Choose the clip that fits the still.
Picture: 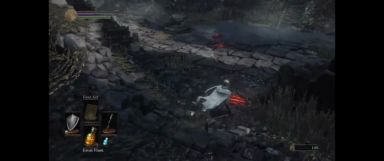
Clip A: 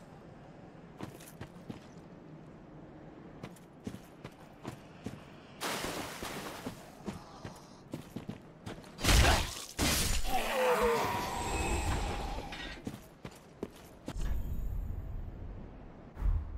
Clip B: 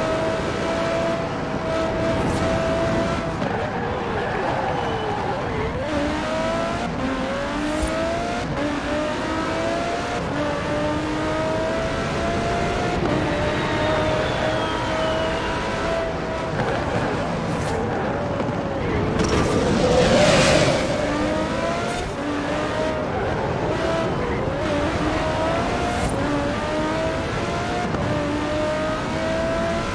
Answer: A